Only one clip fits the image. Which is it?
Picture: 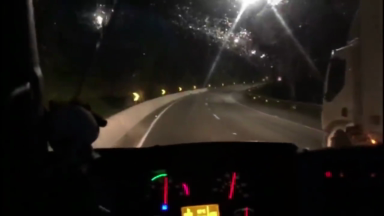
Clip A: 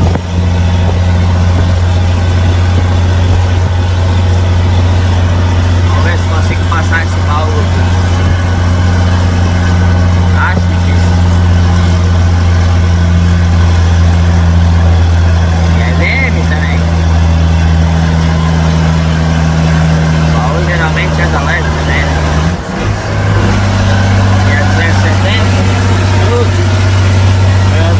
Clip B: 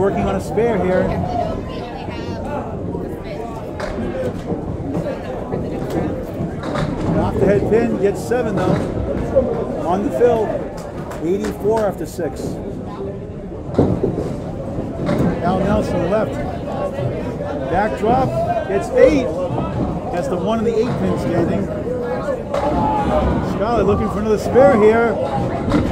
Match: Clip A